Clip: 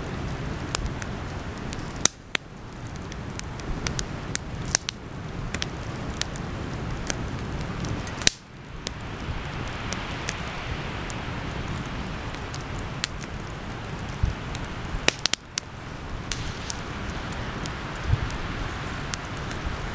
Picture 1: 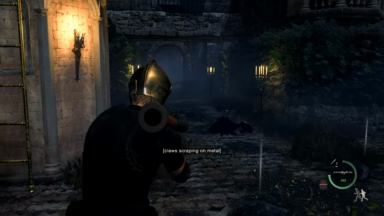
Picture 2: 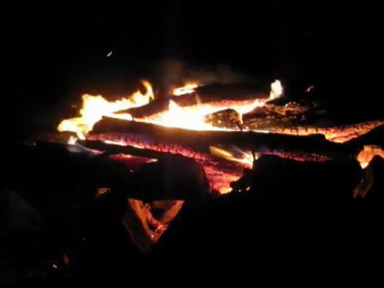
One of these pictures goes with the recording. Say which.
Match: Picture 2